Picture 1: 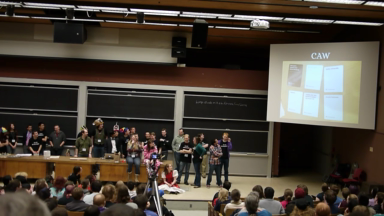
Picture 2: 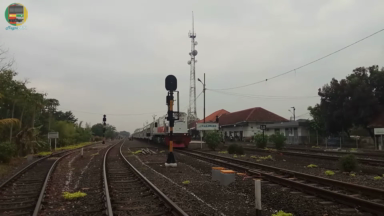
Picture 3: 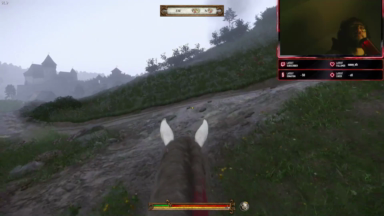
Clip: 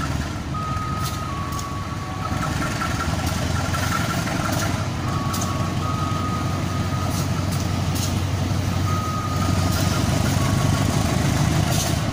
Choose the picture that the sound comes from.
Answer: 2